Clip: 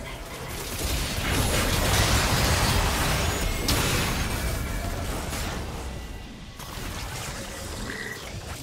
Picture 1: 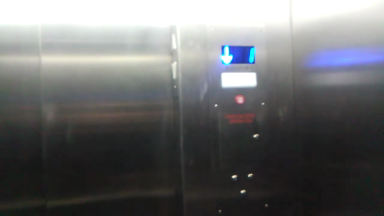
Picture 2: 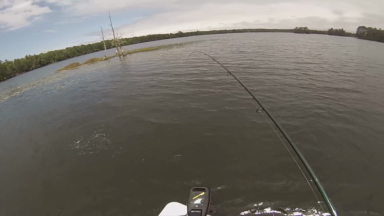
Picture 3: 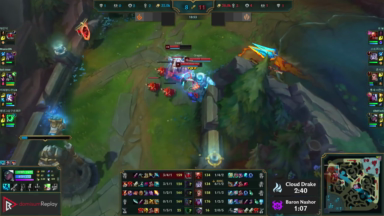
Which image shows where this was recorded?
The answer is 3